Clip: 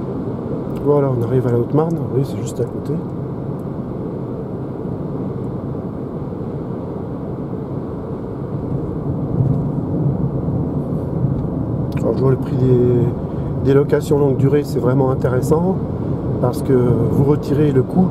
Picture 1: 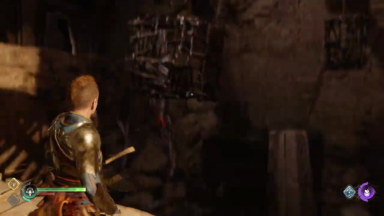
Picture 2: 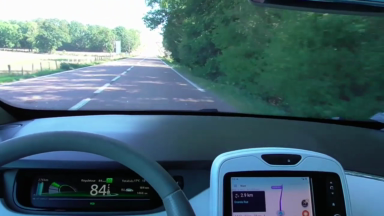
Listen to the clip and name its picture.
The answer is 2